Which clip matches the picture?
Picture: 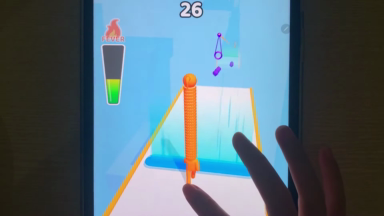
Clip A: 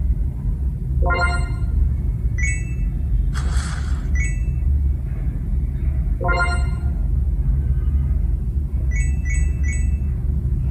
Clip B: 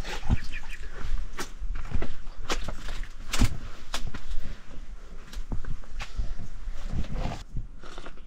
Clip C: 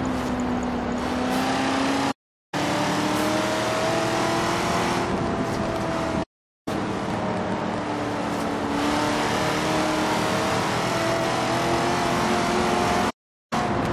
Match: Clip A